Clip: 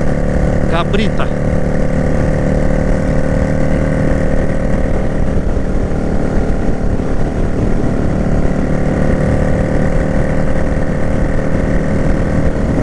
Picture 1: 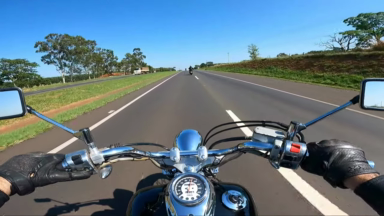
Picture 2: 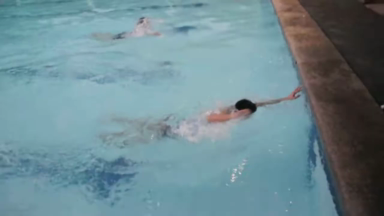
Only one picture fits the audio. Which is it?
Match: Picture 1